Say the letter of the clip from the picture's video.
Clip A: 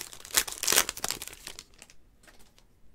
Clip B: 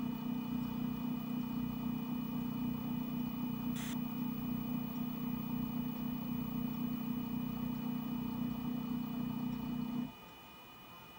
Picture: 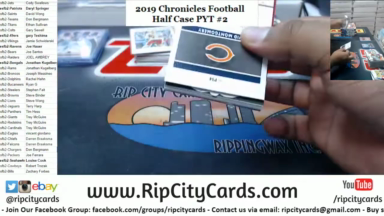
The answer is A